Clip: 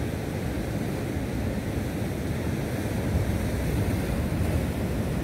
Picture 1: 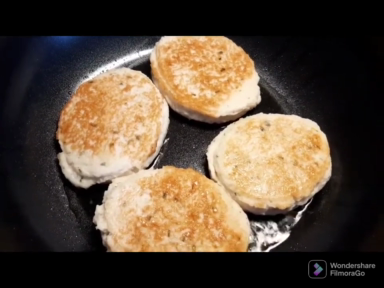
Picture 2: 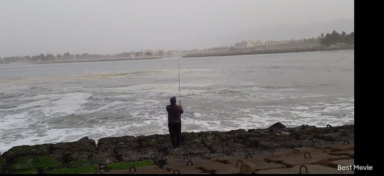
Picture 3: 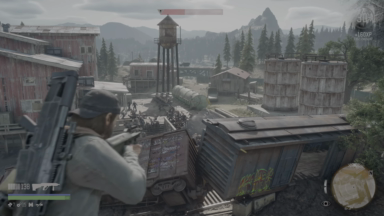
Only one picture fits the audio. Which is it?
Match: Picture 2